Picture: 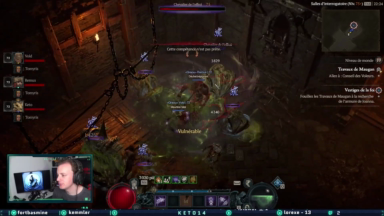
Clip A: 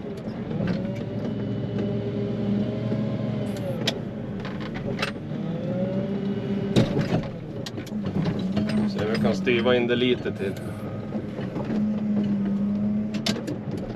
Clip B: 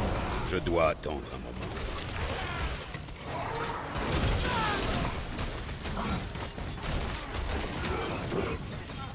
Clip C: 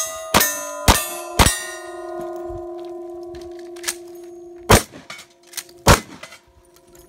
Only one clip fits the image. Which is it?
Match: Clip B